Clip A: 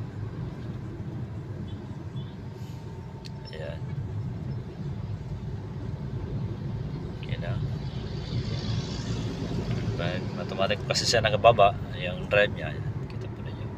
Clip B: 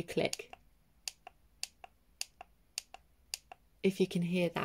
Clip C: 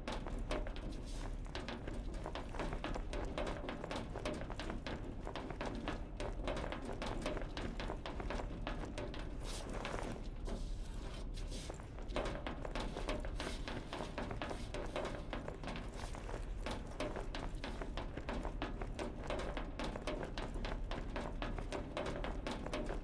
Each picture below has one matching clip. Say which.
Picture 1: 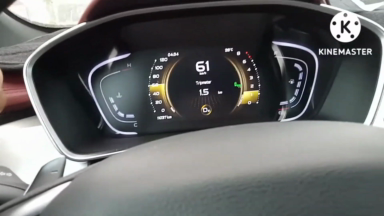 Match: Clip A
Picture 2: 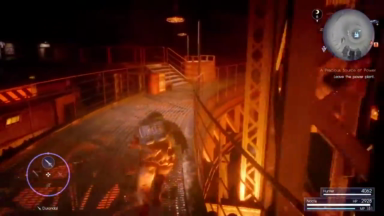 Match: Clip C